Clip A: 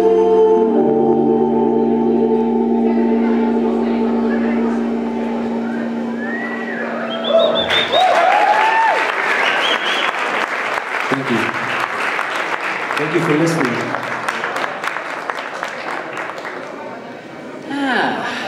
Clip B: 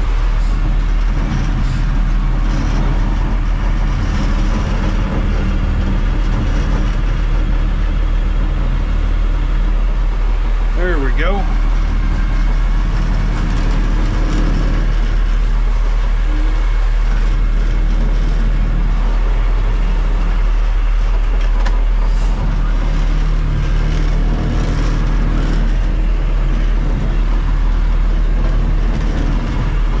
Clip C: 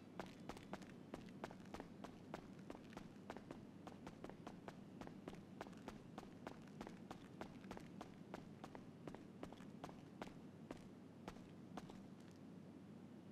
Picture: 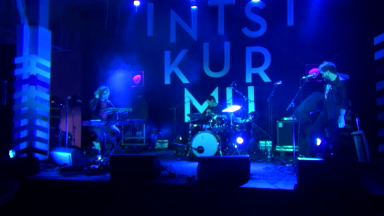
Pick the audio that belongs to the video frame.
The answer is A